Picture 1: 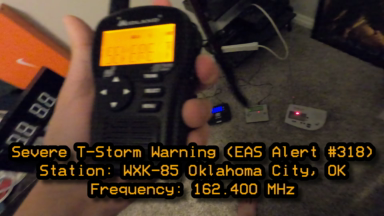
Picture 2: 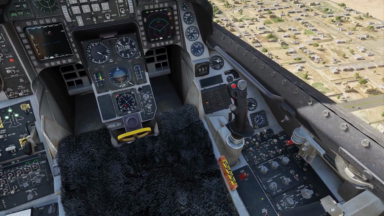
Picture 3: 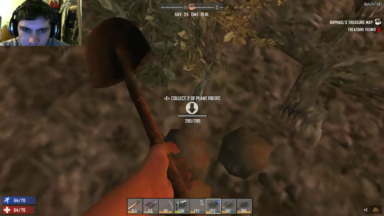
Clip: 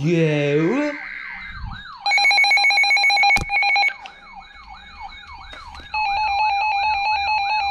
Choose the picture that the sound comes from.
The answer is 1